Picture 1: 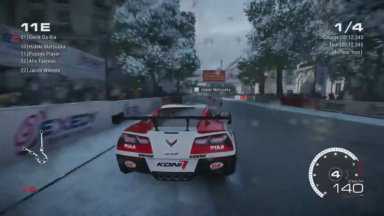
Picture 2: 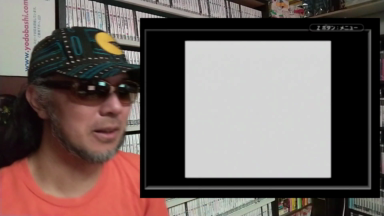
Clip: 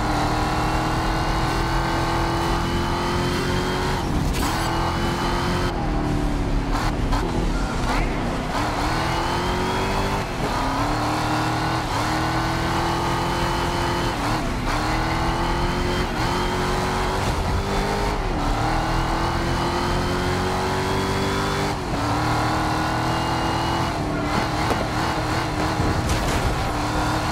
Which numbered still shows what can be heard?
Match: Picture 1